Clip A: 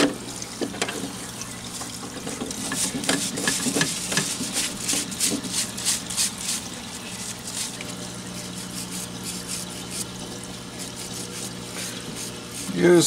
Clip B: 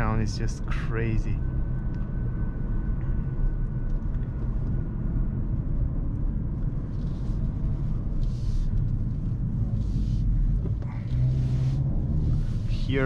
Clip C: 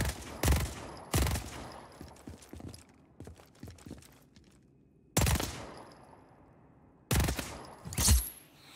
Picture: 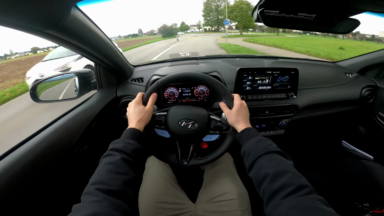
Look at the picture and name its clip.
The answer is B